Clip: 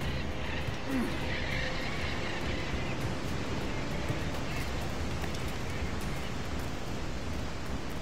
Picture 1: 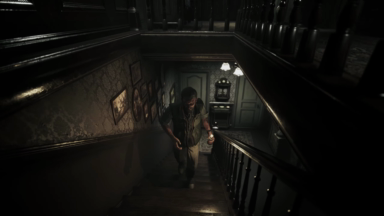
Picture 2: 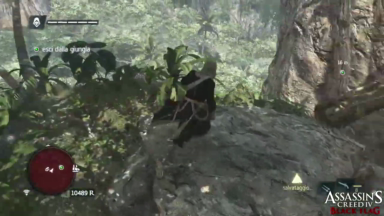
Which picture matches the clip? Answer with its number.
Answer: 2